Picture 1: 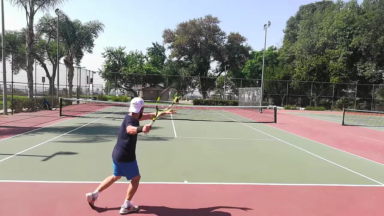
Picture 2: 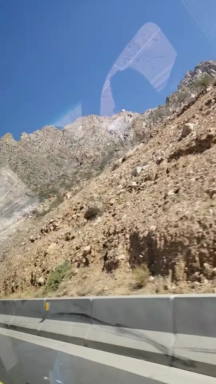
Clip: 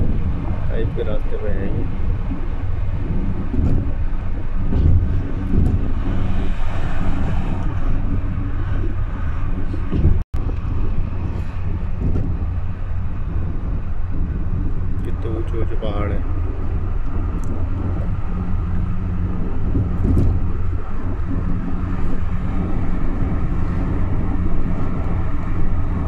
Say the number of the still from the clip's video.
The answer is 2